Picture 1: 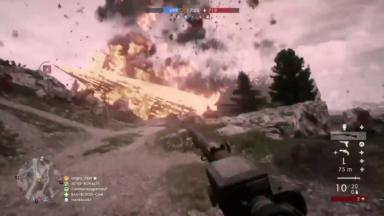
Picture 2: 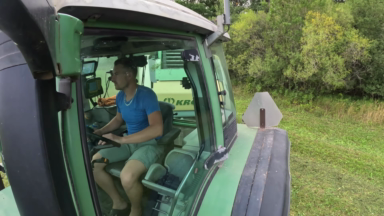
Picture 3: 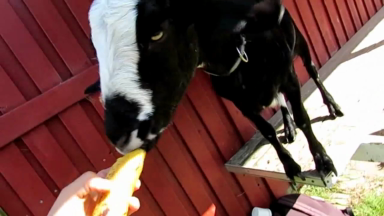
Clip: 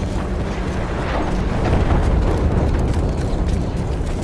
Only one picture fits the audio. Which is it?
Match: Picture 1